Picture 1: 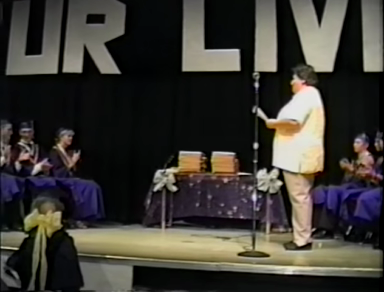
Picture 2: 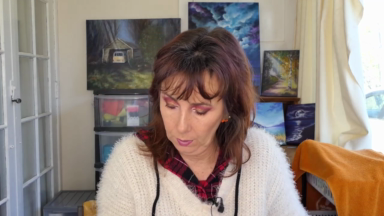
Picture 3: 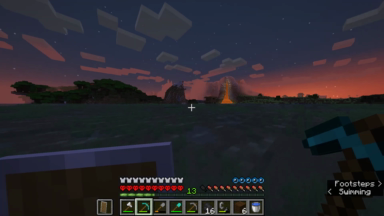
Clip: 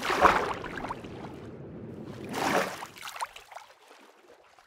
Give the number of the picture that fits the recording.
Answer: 3